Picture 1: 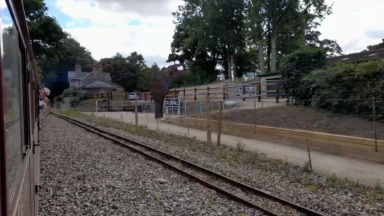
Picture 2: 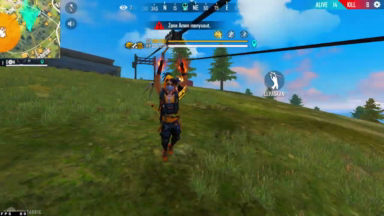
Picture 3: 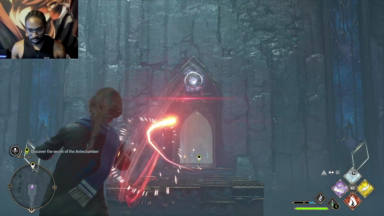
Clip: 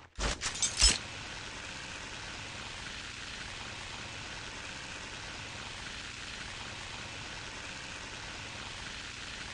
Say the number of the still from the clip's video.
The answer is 2